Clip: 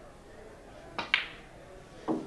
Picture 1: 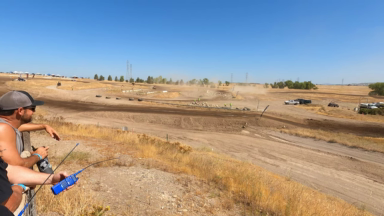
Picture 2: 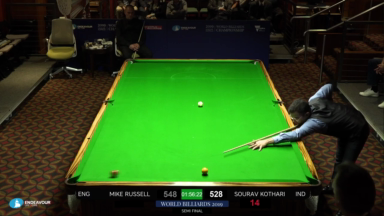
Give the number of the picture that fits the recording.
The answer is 2